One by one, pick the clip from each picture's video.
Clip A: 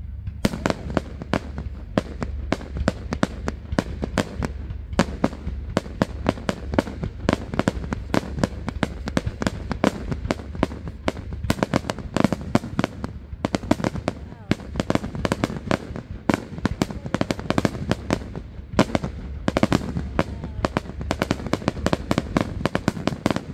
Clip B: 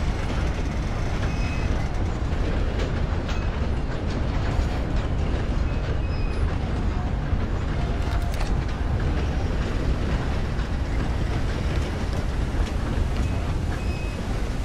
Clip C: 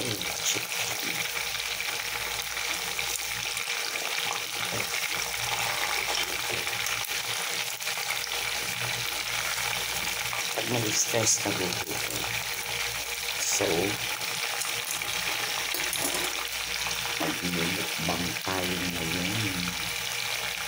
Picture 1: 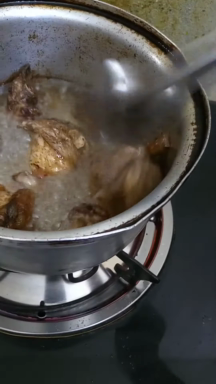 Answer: C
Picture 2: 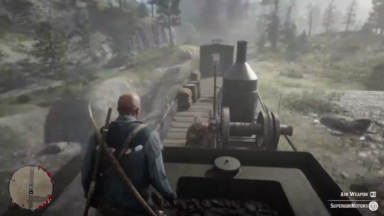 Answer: B